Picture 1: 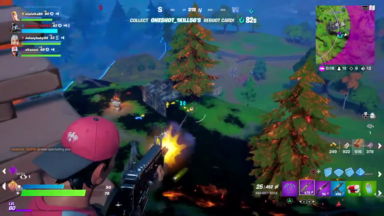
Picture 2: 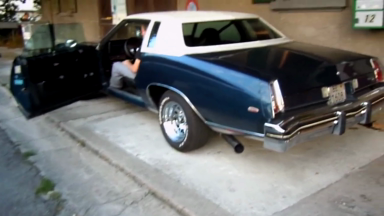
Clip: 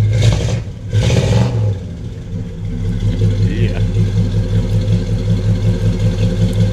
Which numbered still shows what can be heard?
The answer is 2